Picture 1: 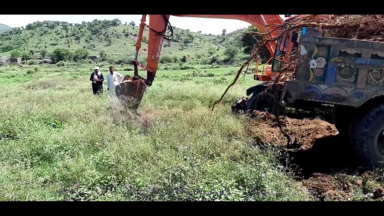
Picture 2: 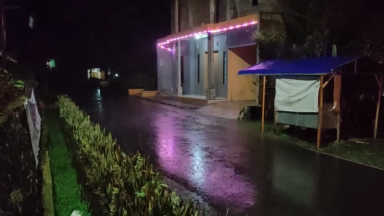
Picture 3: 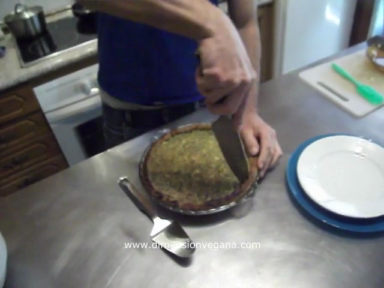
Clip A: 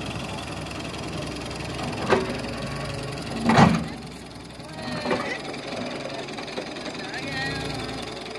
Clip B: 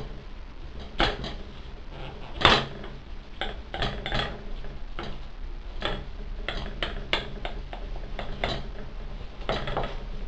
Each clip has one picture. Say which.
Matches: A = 1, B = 3